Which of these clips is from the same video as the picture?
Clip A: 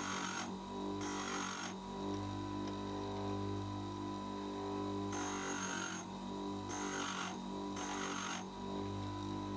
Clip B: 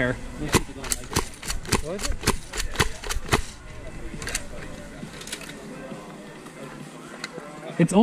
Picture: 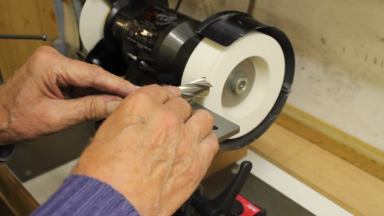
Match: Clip A